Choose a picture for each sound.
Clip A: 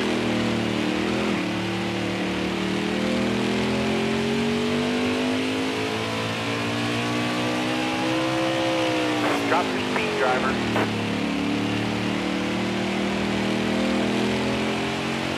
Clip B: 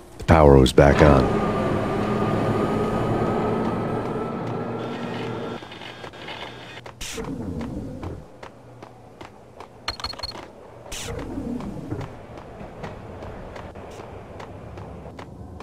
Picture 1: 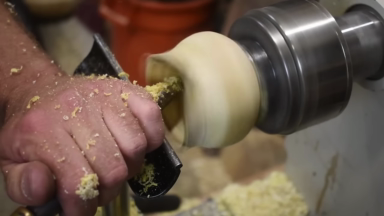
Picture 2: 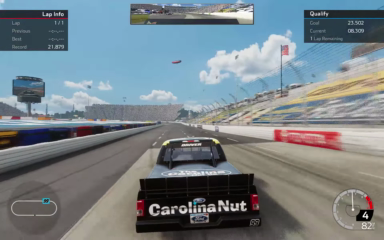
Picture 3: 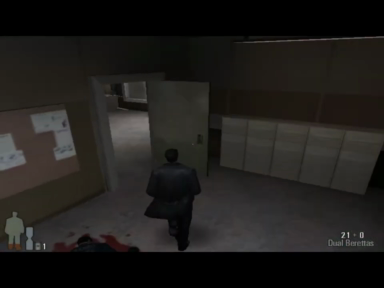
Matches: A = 2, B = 3